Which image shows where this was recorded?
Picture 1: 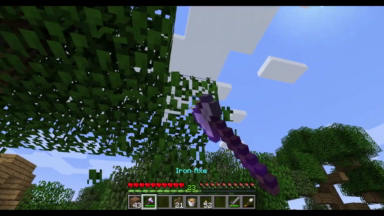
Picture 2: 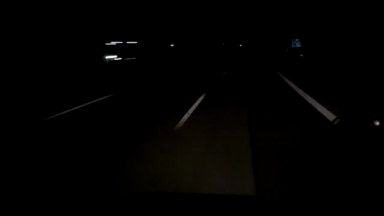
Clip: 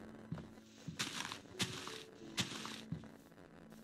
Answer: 1